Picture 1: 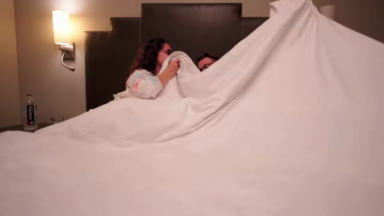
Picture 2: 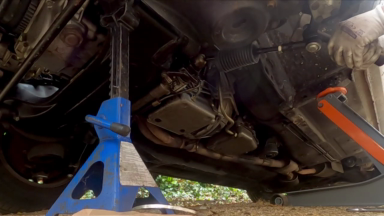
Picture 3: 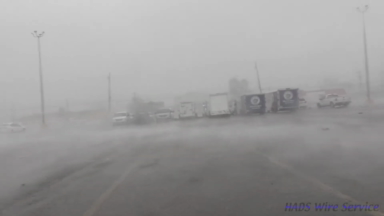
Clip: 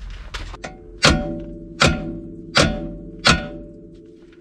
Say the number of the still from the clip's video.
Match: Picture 2